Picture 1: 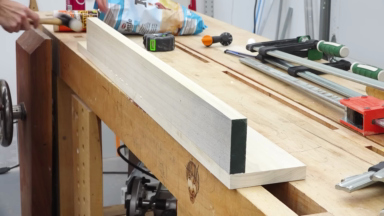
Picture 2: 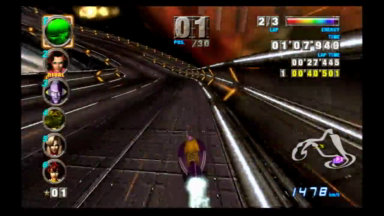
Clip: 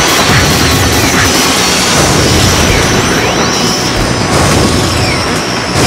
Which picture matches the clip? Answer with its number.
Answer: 2